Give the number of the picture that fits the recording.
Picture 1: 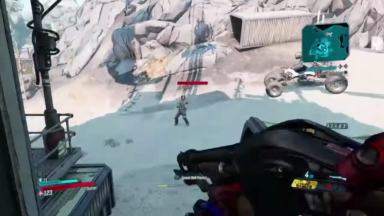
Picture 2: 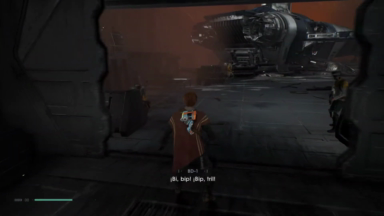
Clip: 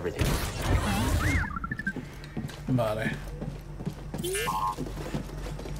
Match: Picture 2